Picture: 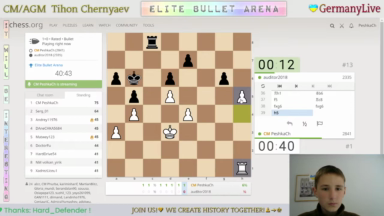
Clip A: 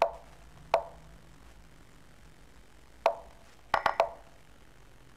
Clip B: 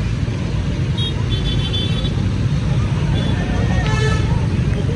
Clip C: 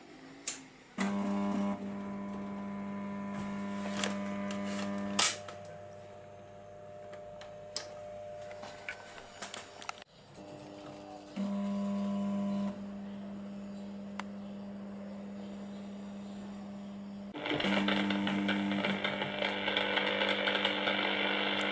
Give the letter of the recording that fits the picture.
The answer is A